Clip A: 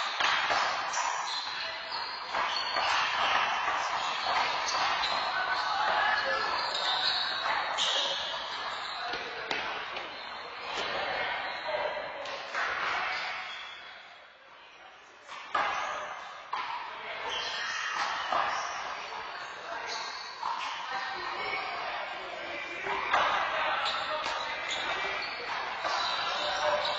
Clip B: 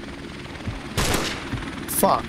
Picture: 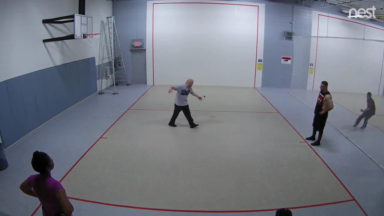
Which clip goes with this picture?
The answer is A